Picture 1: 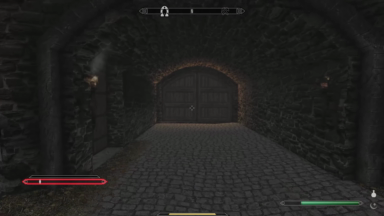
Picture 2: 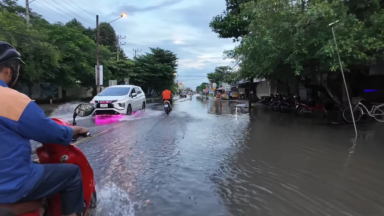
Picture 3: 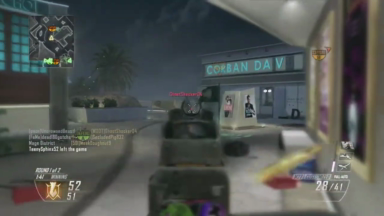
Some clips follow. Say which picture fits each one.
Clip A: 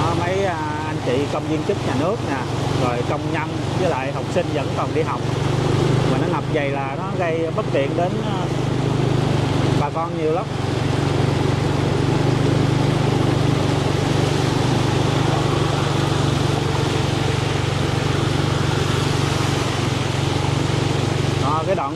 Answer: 2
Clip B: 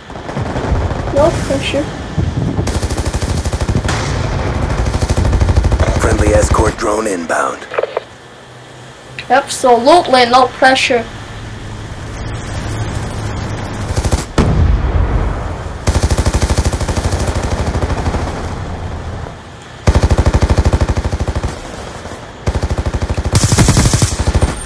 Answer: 3